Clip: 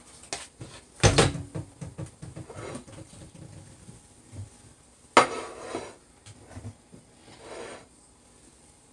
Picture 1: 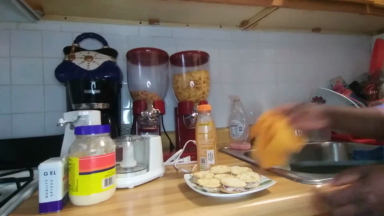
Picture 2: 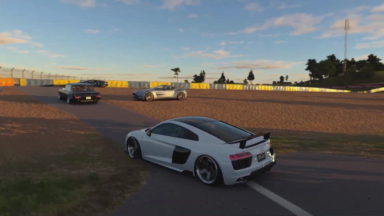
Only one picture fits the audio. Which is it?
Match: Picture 1